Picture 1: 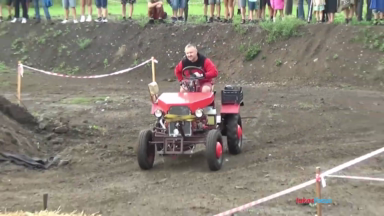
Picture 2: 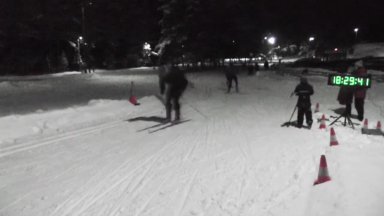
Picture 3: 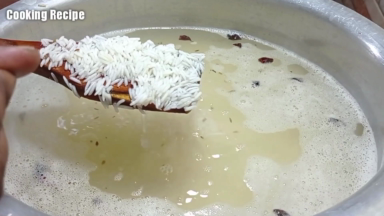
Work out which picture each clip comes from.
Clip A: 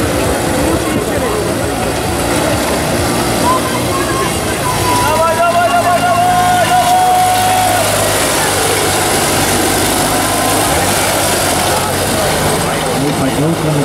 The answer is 1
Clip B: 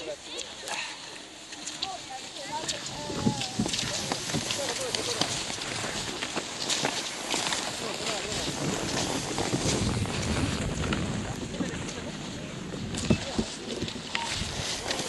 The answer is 2